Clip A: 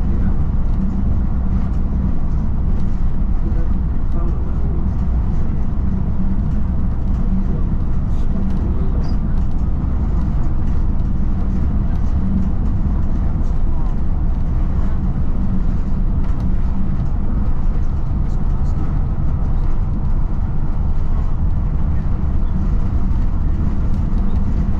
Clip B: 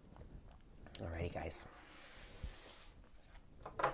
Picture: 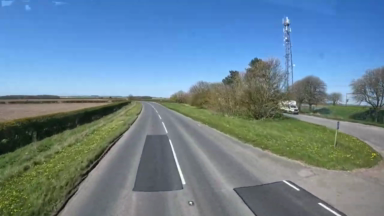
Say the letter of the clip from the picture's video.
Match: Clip A